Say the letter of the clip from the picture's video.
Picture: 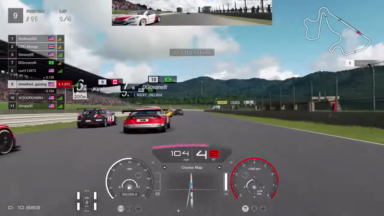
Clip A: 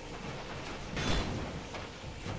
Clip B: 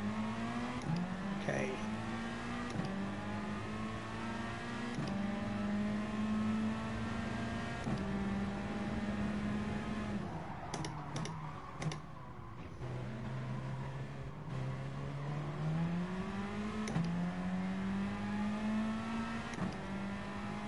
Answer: B